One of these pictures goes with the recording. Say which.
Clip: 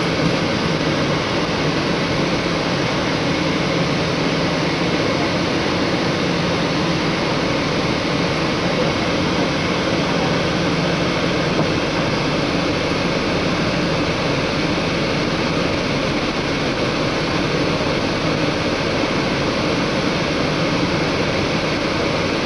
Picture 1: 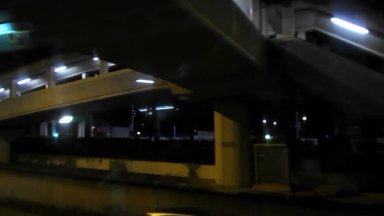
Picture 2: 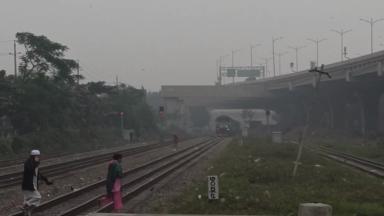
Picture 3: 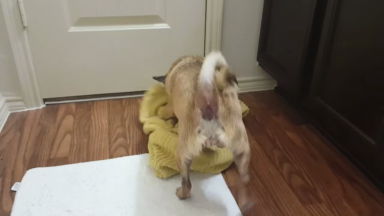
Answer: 1